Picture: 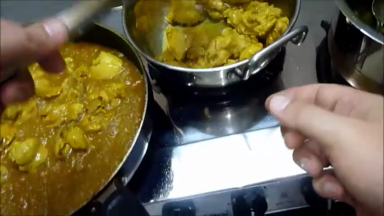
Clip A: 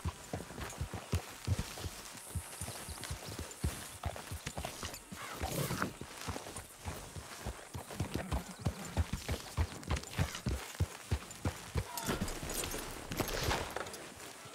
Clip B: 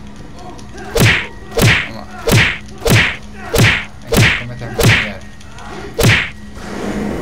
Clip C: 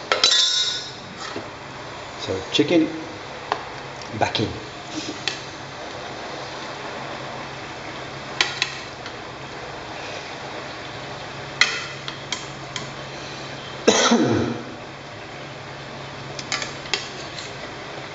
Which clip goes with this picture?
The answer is C